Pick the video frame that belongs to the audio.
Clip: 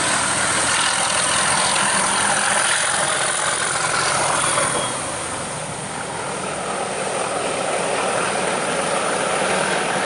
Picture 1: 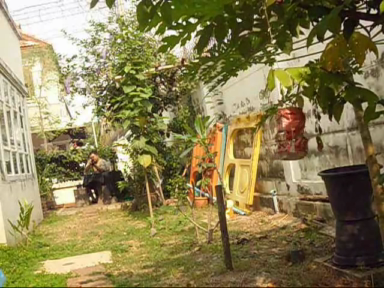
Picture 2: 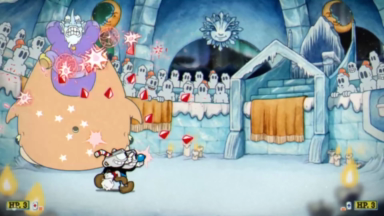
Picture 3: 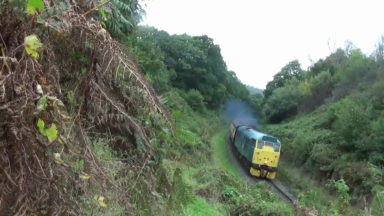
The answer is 3